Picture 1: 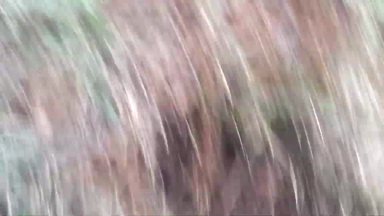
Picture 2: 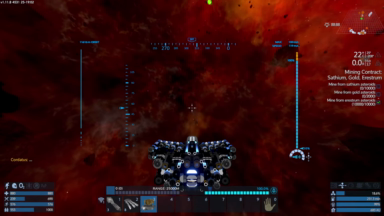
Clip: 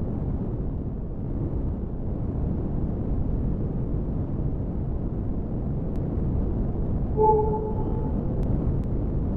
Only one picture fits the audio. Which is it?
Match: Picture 2